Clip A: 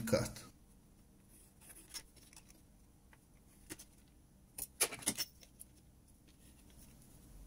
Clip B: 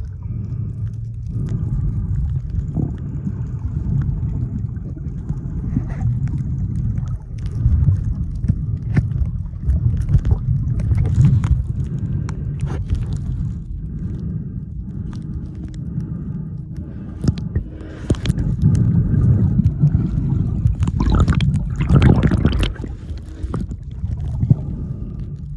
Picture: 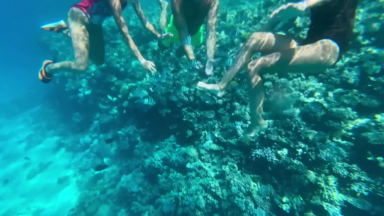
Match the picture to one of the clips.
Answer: B